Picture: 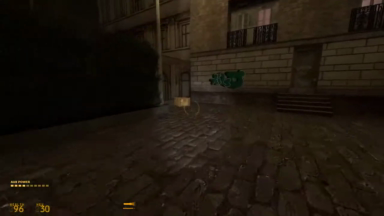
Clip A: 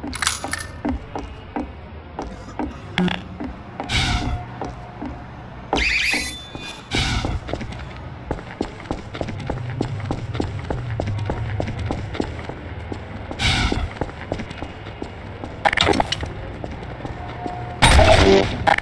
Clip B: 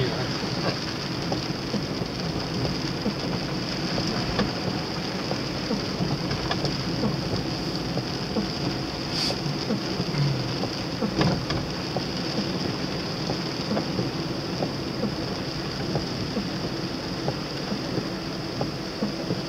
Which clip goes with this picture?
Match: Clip A